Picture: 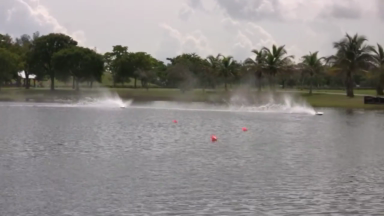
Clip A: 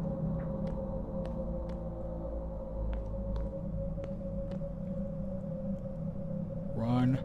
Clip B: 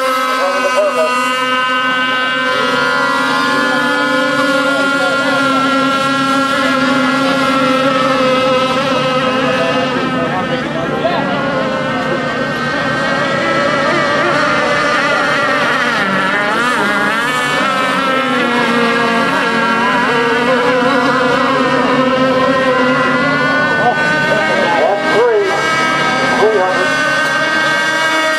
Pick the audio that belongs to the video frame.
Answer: B